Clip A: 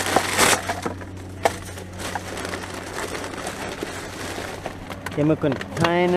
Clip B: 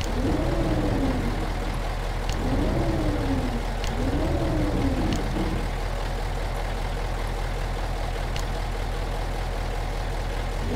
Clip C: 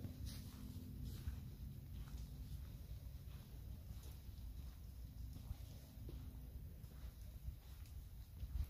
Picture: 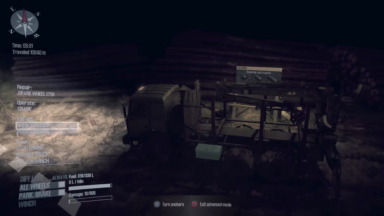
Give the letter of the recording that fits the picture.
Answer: B